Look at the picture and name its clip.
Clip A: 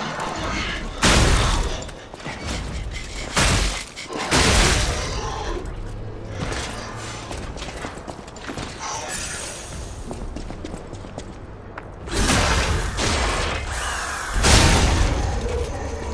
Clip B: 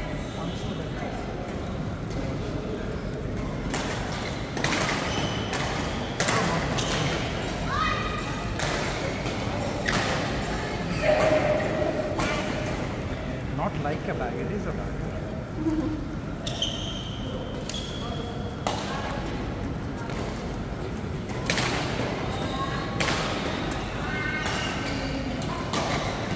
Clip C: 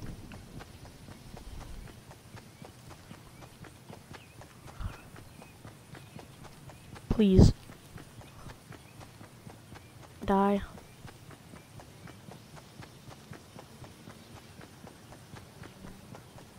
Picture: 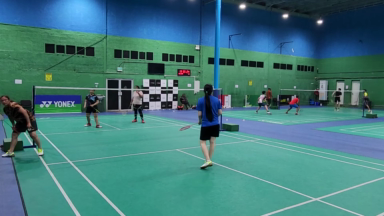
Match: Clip B